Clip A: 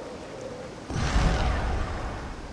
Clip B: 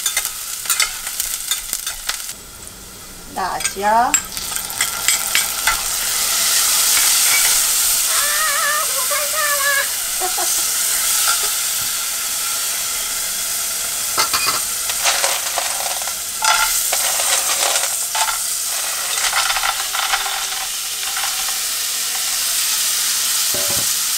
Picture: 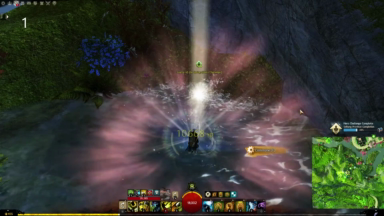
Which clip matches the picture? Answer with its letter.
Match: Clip A